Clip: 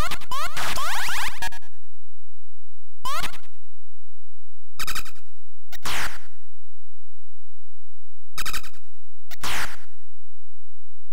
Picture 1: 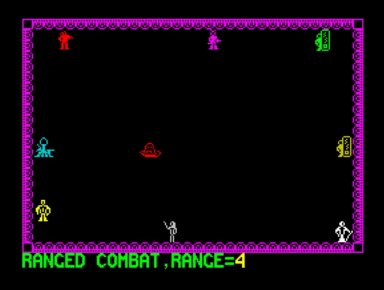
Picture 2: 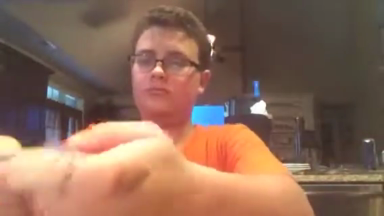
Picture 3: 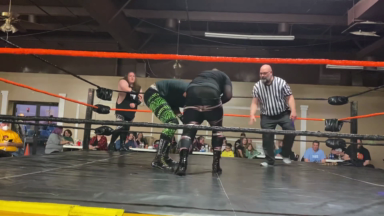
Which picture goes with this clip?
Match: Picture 1